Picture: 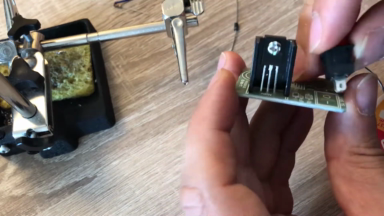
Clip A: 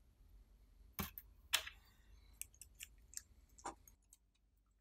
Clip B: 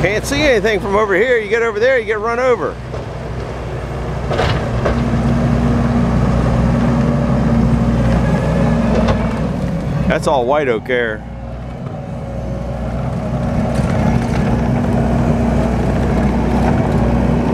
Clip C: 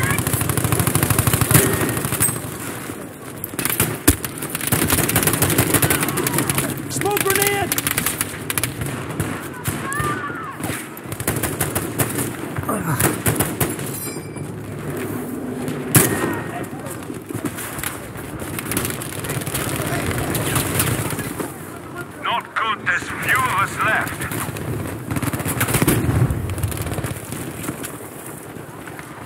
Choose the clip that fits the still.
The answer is A